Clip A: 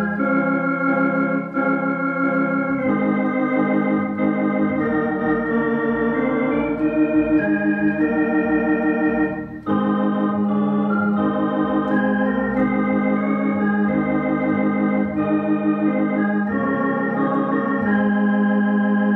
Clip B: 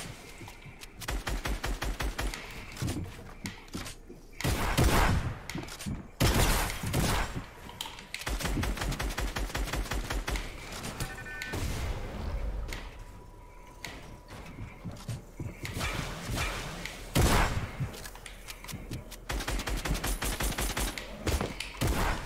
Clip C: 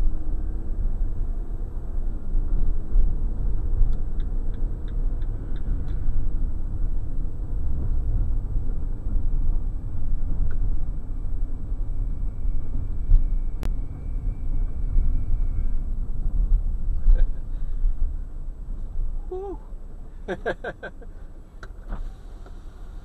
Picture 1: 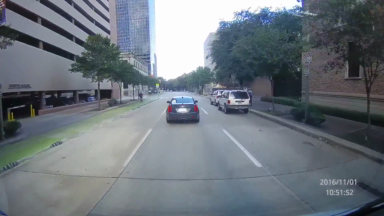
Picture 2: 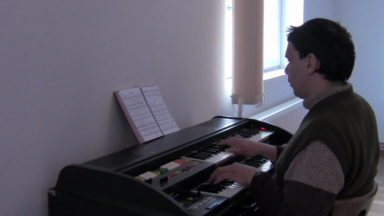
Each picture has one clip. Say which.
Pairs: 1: C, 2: A